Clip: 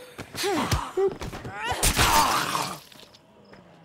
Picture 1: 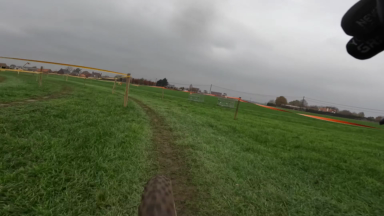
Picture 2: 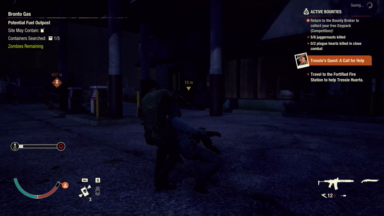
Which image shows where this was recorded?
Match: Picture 2